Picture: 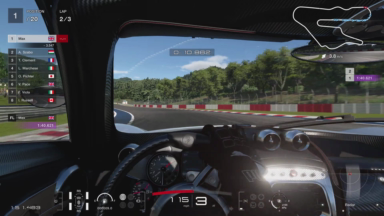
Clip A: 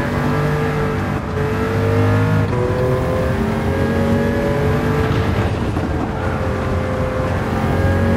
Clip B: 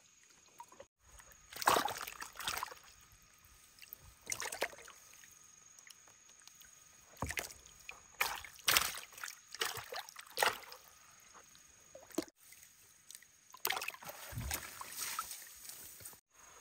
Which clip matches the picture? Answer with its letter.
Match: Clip A